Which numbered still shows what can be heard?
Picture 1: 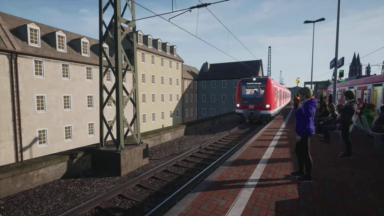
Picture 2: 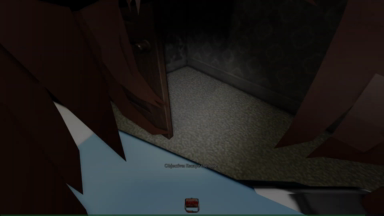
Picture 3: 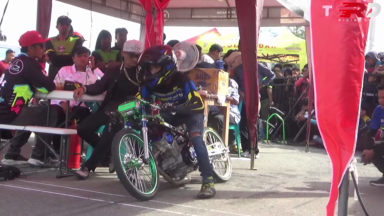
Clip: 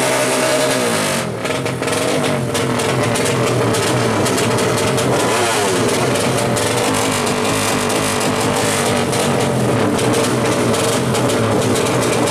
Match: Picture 3